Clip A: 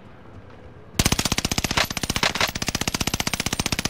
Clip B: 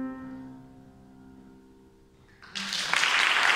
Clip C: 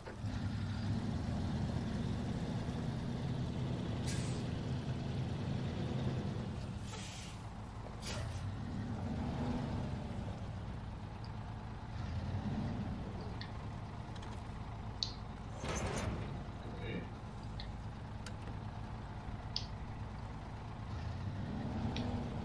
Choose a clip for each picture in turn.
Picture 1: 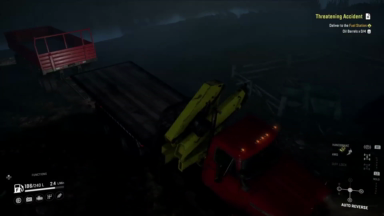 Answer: C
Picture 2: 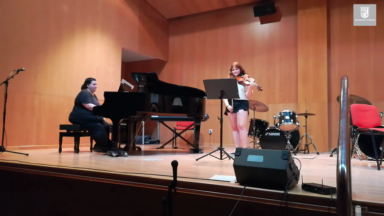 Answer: B